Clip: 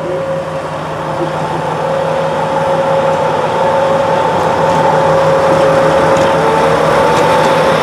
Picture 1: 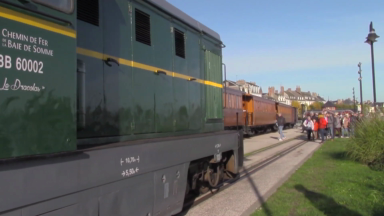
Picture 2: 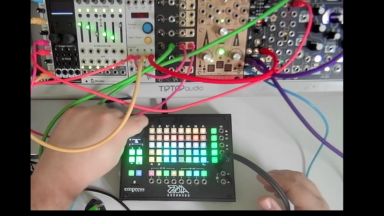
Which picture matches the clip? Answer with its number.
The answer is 1